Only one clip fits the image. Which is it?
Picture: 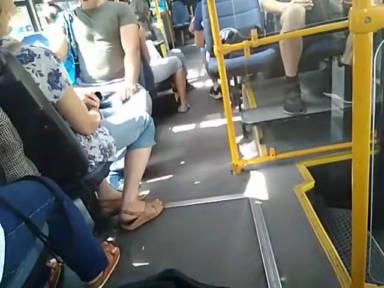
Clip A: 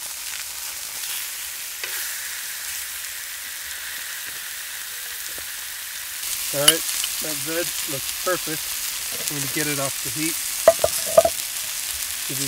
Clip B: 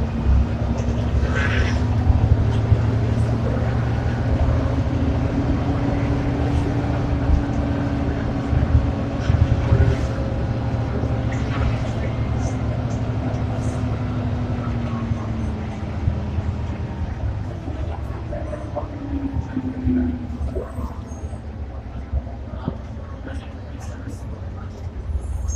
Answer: B